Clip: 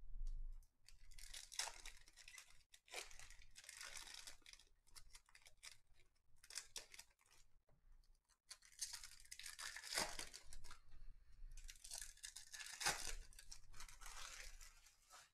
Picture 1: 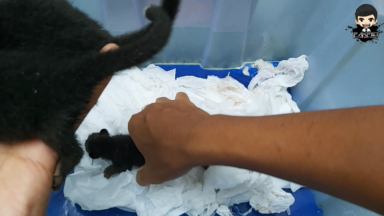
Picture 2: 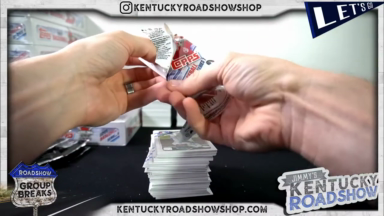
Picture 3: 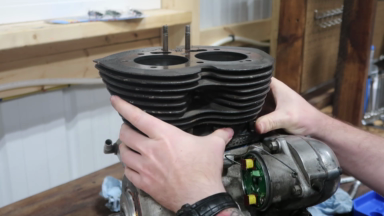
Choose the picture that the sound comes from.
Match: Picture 2